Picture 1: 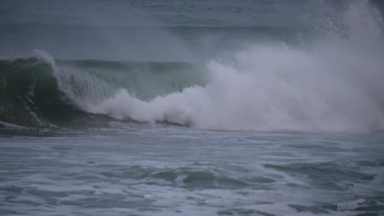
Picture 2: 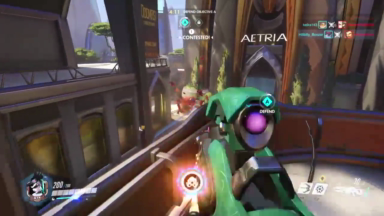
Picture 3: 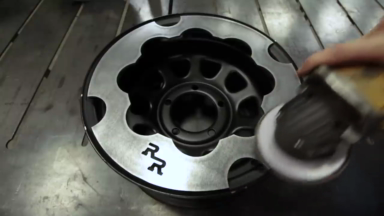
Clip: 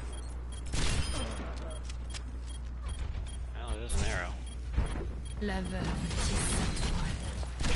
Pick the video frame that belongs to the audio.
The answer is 2